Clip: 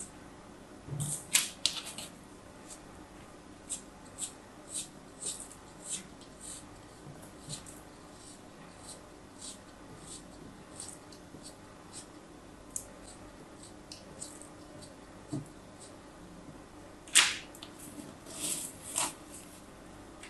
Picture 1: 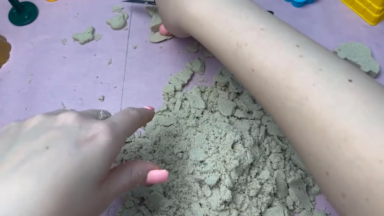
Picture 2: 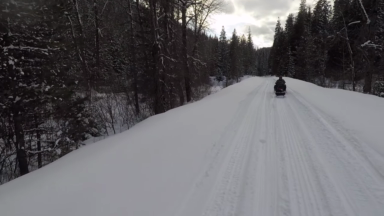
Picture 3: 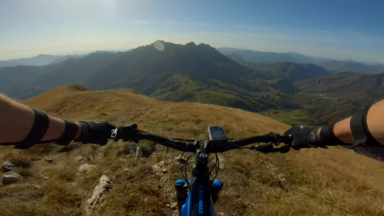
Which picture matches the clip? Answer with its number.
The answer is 1